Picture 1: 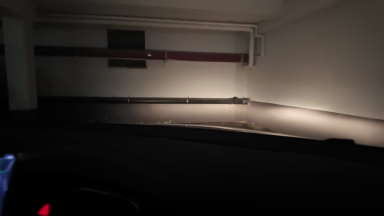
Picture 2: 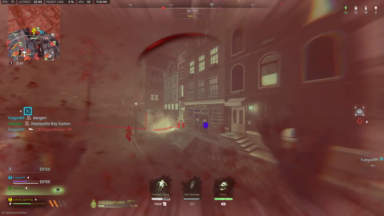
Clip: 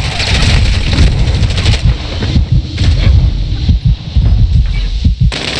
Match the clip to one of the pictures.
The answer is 2